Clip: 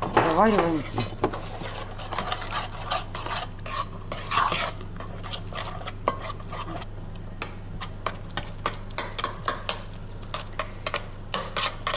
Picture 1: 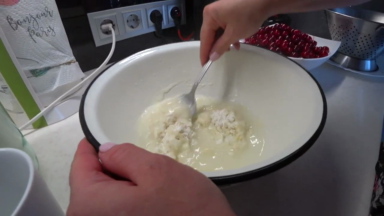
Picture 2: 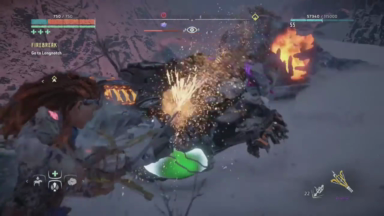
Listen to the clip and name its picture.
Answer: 1